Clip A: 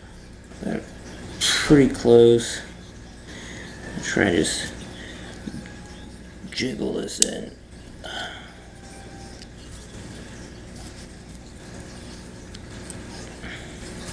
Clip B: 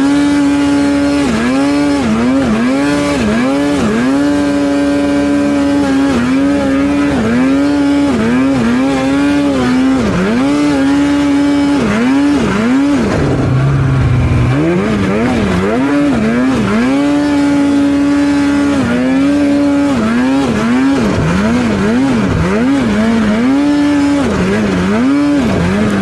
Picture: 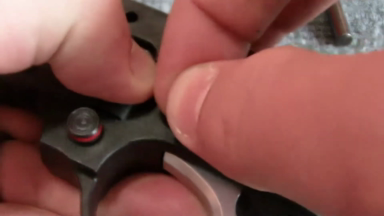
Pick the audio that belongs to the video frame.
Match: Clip A